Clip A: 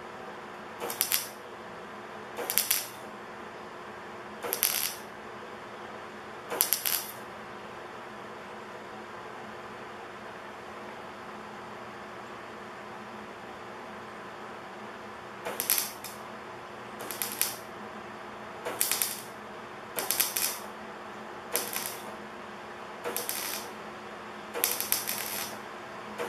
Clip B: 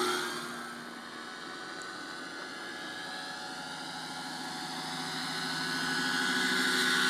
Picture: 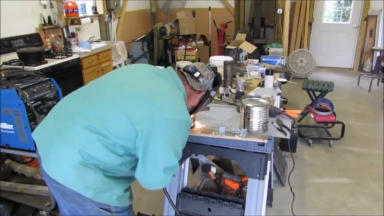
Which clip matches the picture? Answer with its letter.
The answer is A